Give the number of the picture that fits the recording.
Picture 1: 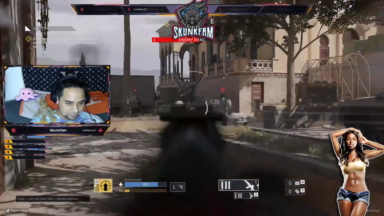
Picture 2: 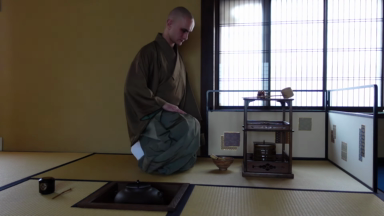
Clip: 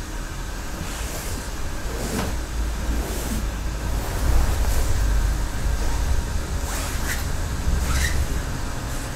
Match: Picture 2